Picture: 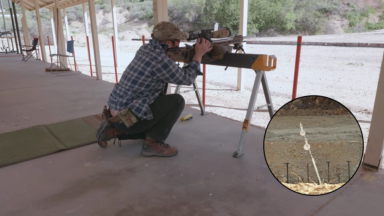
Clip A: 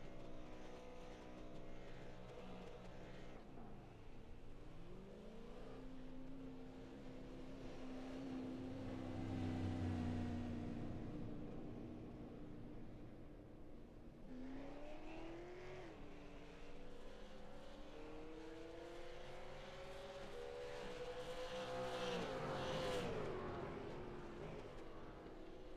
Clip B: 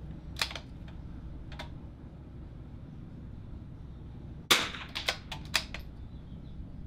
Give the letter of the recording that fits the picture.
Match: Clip B